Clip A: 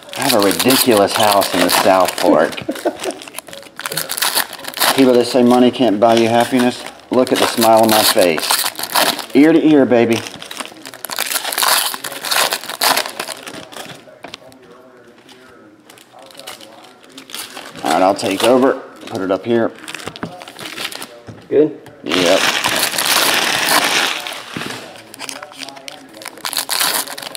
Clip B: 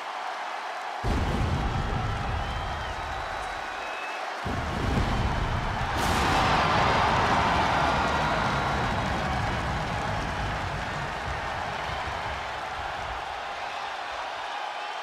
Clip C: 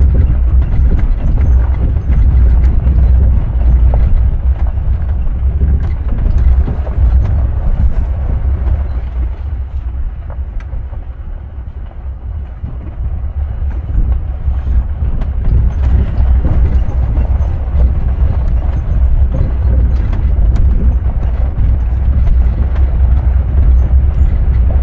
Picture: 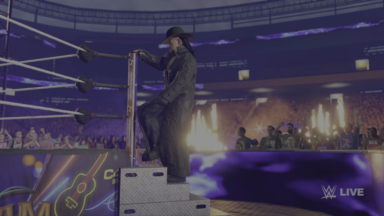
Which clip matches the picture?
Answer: B